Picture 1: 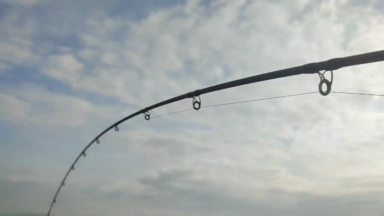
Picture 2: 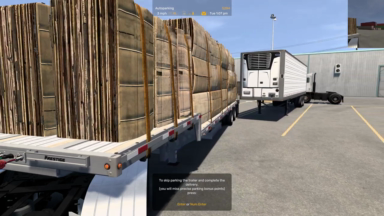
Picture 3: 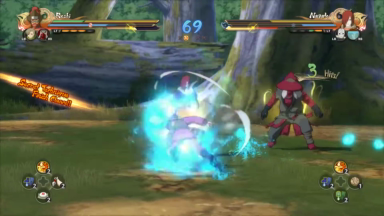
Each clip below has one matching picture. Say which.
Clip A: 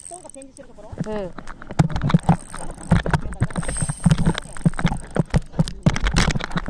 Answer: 1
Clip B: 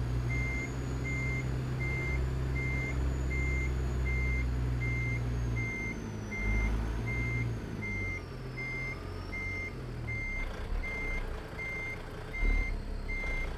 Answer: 2